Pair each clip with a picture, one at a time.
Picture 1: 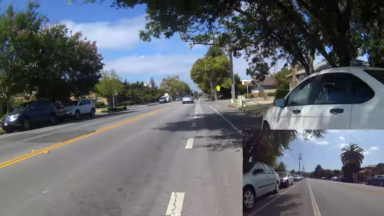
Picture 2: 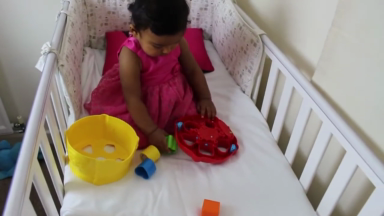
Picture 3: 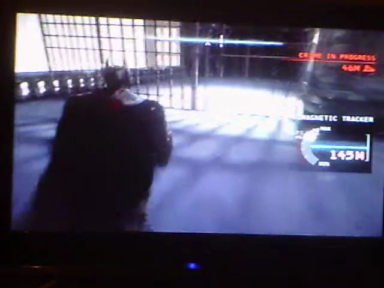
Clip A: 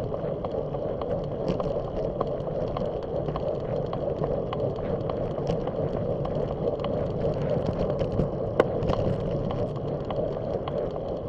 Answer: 1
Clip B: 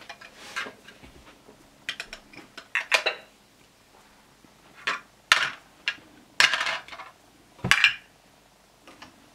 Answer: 2